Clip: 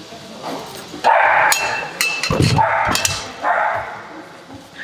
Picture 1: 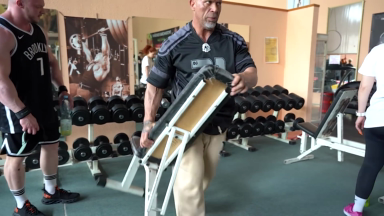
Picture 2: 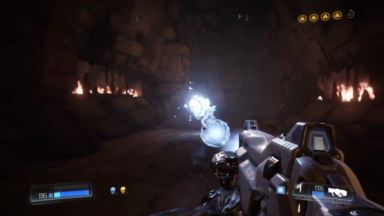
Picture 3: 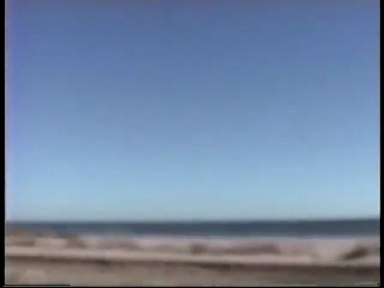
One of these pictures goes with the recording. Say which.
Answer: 1